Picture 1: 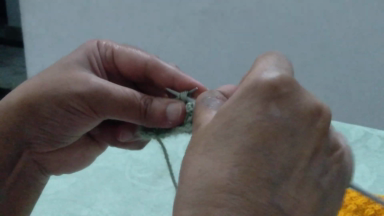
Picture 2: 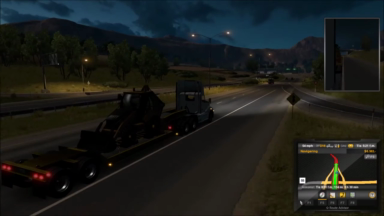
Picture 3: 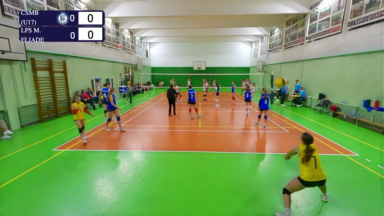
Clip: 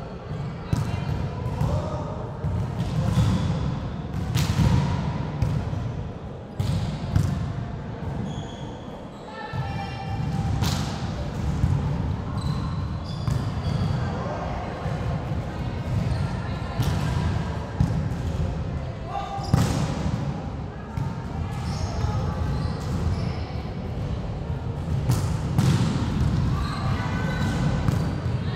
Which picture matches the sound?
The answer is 3